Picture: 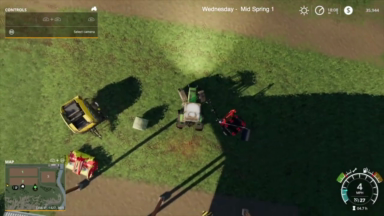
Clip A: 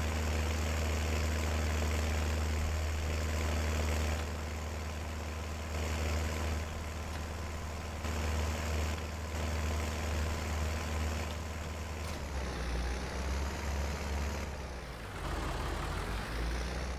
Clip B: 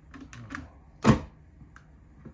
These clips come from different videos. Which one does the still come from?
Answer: A